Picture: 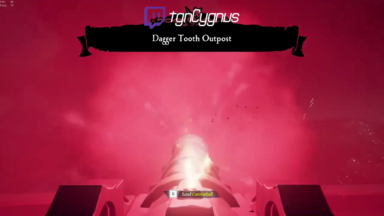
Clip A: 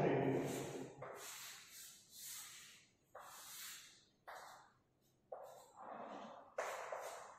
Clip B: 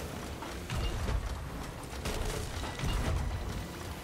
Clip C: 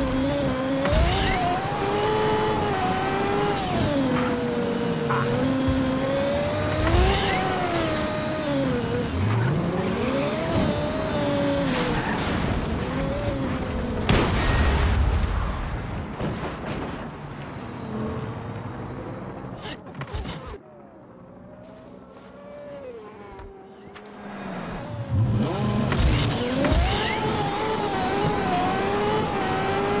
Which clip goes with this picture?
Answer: B